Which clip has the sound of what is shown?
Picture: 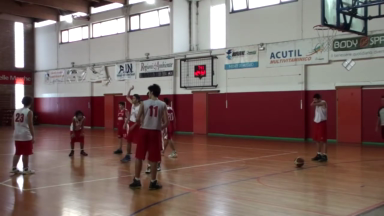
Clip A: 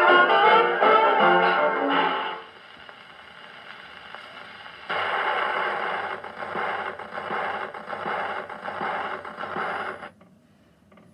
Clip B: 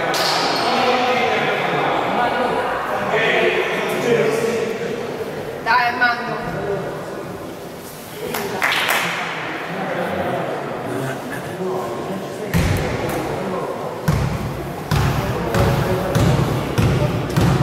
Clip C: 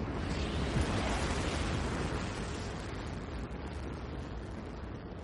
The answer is B